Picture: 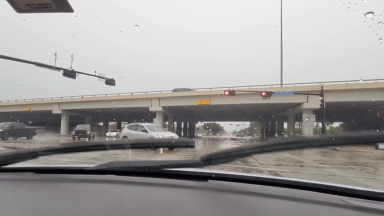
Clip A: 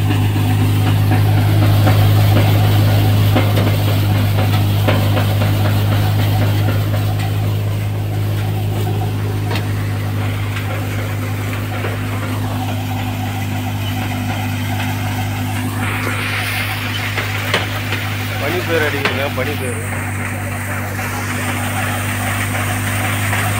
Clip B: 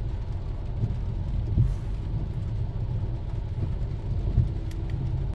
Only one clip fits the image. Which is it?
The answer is B